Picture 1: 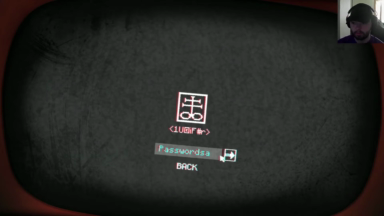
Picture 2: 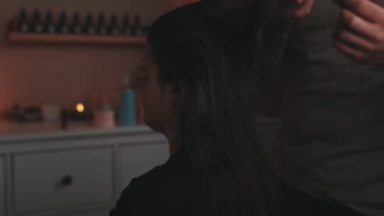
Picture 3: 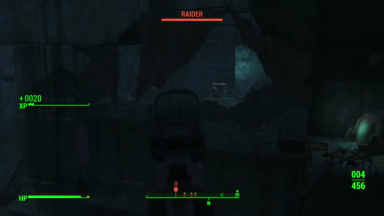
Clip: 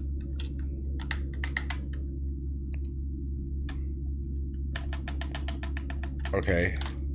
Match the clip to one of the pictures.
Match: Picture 1